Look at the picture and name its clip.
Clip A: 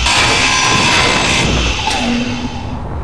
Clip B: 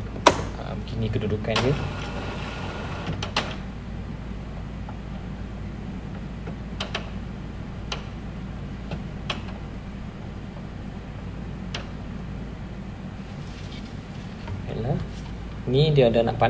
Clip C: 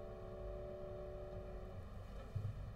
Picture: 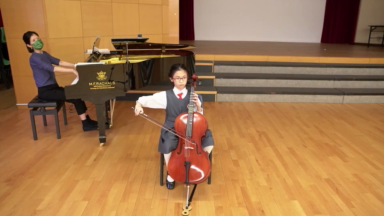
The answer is C